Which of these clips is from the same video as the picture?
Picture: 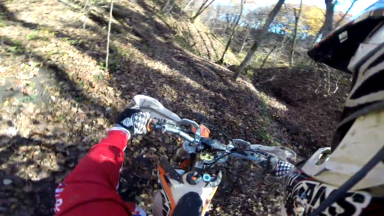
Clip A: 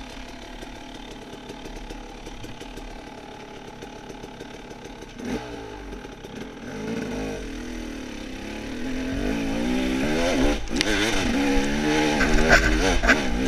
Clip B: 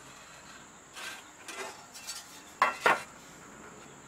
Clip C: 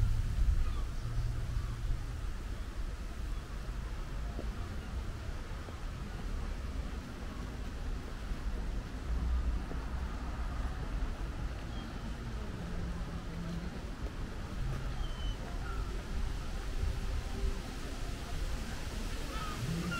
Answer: A